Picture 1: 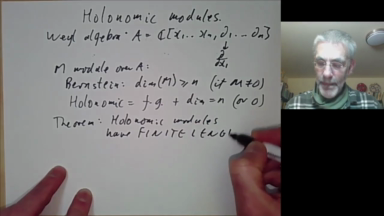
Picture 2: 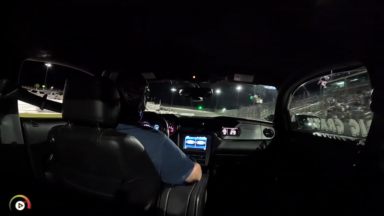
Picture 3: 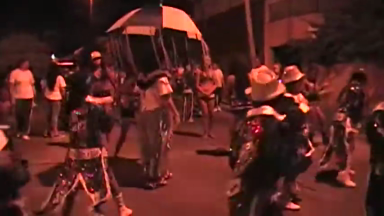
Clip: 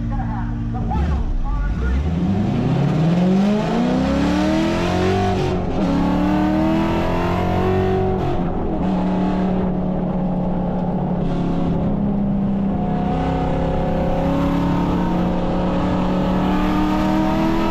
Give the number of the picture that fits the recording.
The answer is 2